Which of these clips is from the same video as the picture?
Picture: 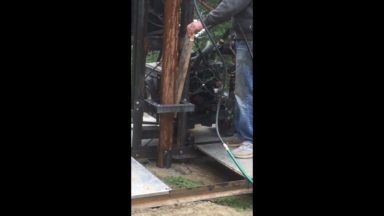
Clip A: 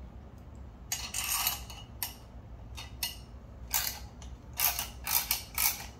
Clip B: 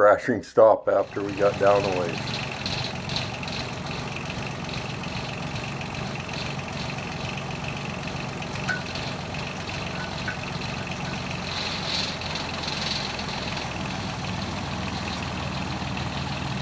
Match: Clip B